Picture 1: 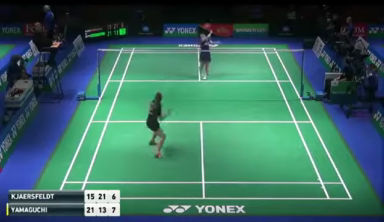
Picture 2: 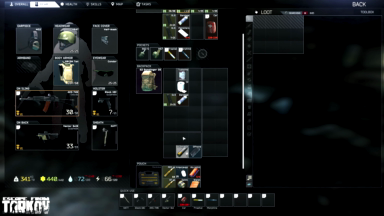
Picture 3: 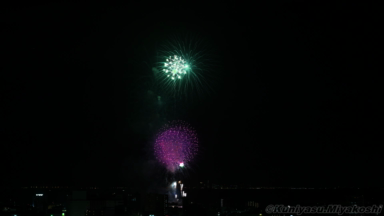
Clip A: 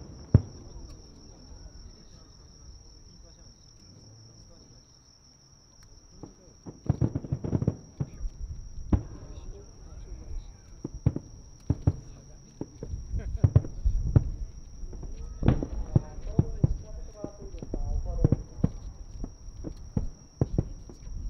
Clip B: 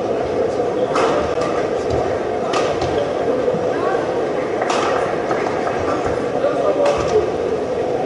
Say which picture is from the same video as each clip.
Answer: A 3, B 1